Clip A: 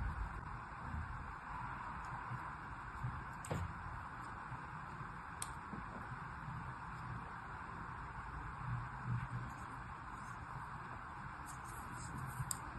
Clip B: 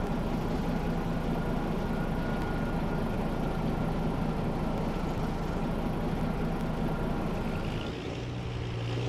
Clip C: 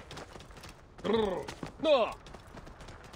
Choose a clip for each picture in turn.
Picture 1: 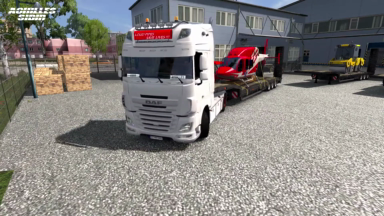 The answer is B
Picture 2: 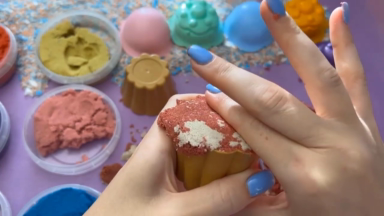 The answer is A